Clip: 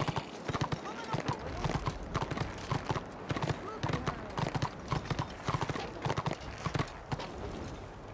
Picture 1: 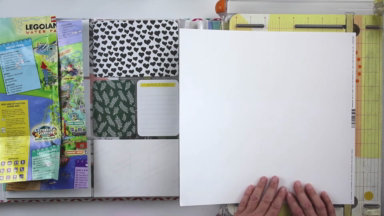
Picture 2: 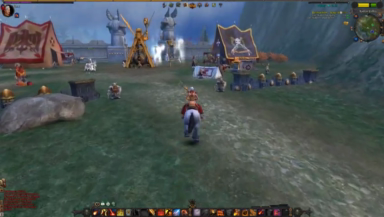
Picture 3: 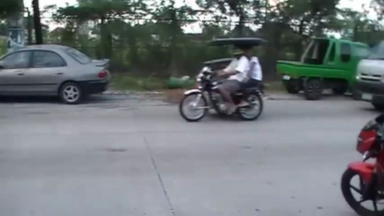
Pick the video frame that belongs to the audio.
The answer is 2